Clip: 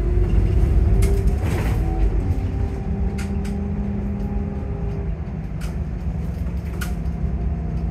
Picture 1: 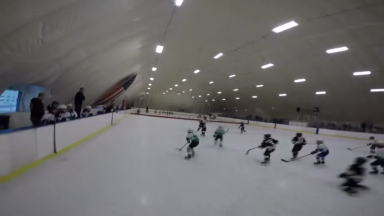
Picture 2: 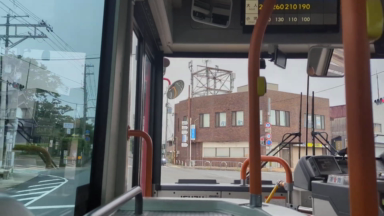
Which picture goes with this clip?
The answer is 2